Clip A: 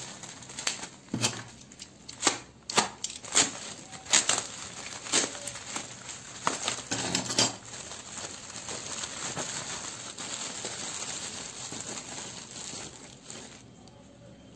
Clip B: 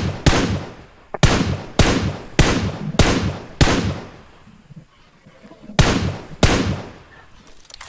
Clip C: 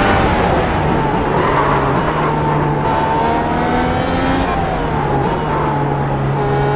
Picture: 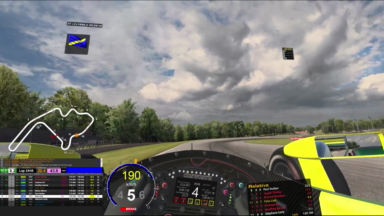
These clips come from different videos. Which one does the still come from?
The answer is C